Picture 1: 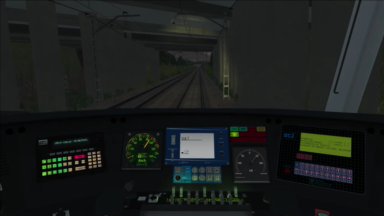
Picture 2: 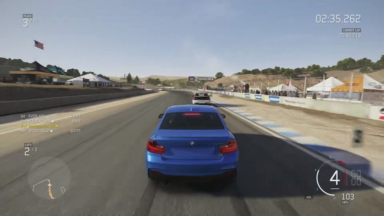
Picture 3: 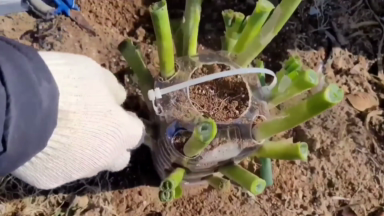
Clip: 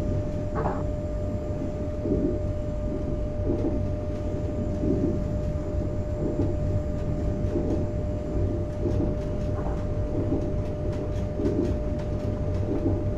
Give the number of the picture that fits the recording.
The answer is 1